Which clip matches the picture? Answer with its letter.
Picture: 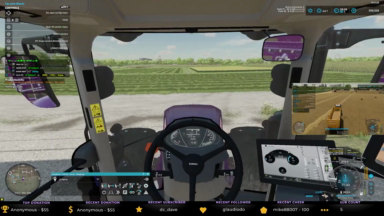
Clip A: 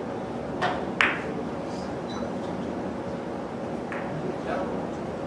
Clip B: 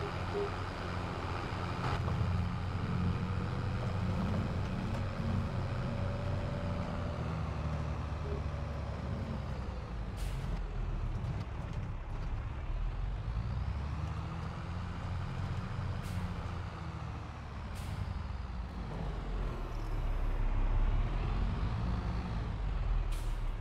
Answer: B